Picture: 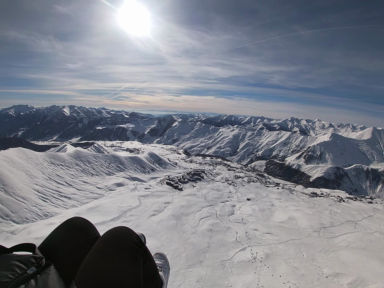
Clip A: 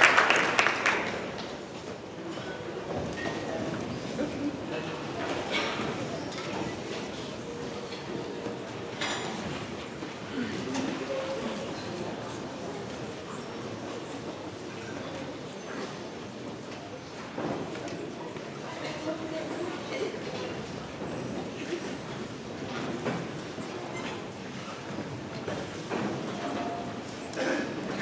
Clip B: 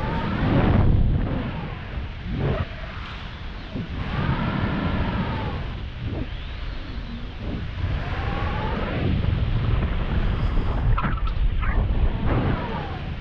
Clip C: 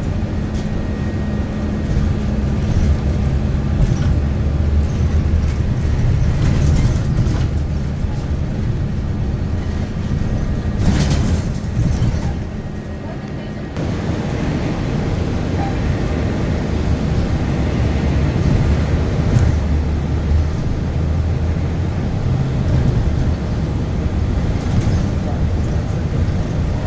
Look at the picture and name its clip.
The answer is B